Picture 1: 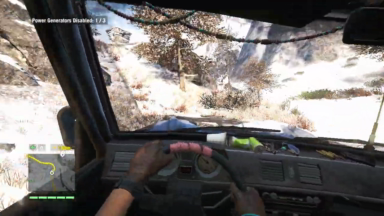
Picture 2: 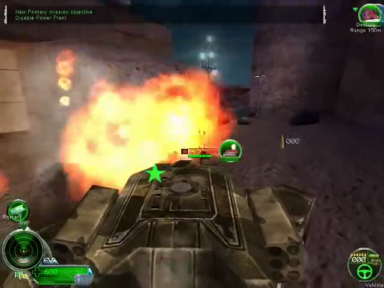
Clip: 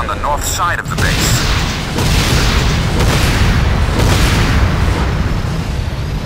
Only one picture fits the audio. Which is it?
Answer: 2